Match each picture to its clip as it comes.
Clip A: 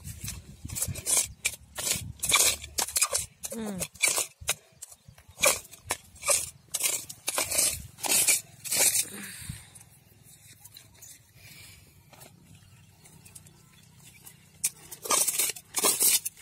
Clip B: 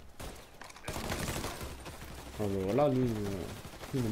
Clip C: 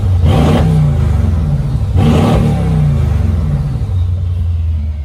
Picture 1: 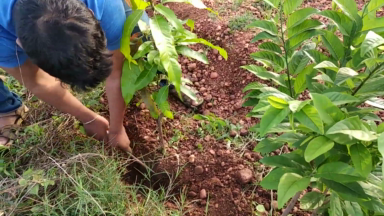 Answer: A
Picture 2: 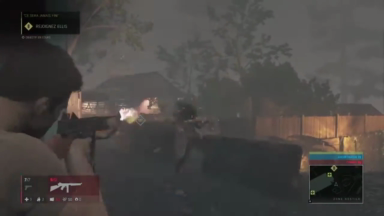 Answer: B